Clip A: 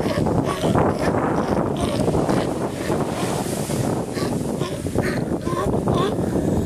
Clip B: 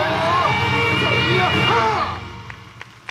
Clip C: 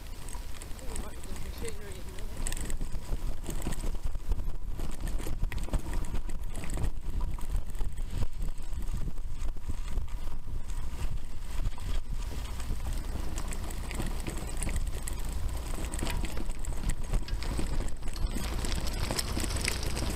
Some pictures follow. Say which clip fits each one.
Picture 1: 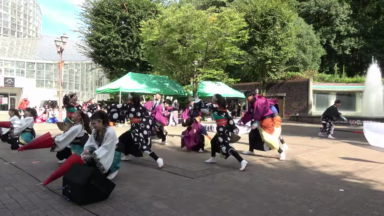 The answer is B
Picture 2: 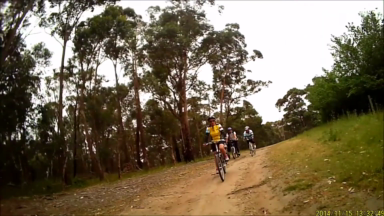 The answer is C